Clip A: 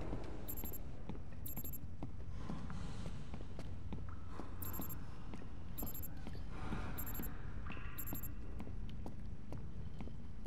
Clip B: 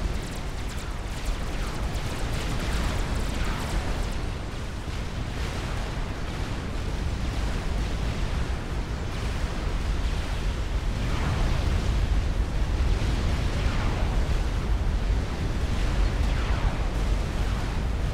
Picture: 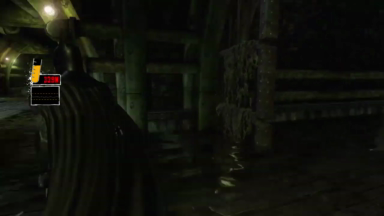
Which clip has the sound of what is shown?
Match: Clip A